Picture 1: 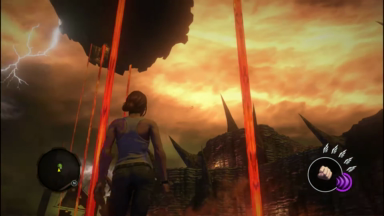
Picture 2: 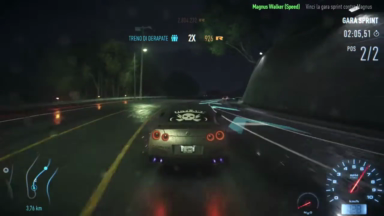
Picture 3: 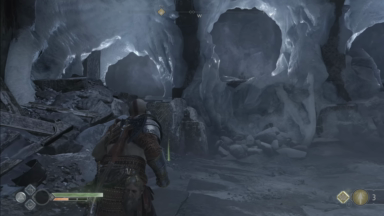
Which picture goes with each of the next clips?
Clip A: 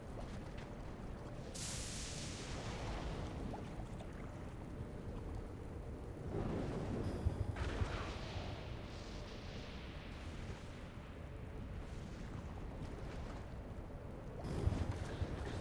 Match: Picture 1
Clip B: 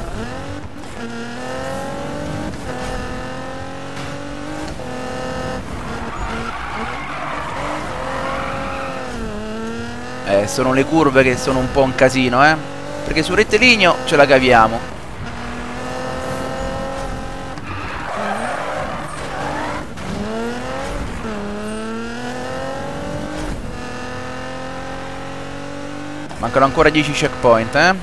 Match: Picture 2